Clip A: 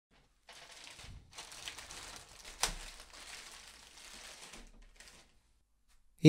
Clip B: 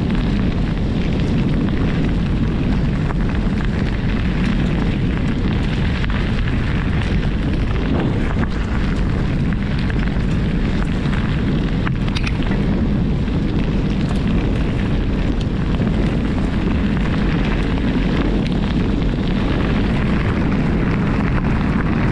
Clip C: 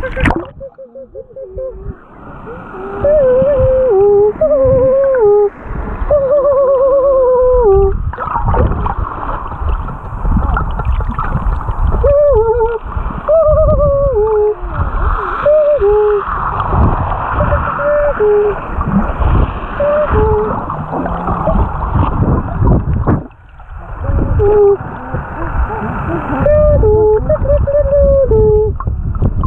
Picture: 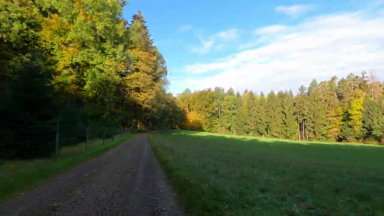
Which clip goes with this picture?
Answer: B